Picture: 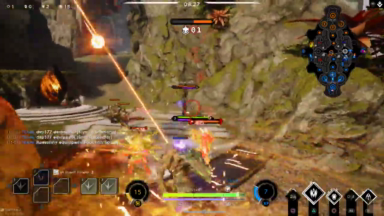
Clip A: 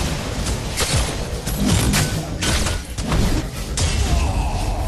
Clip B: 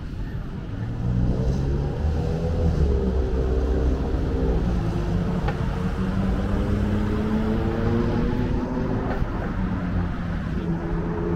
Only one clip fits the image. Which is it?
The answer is A